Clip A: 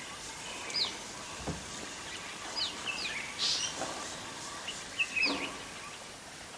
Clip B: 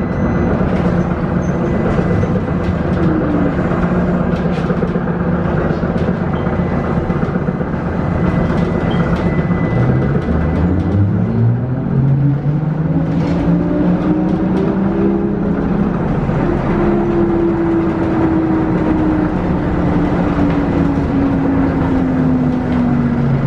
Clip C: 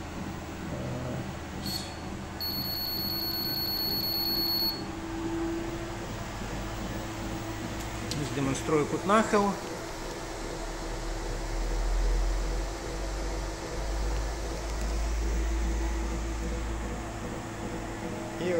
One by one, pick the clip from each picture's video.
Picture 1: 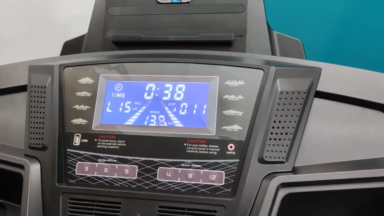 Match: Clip C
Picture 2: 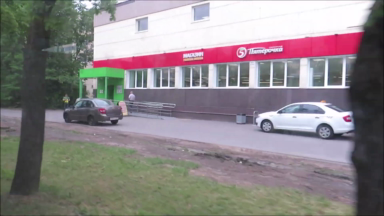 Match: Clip B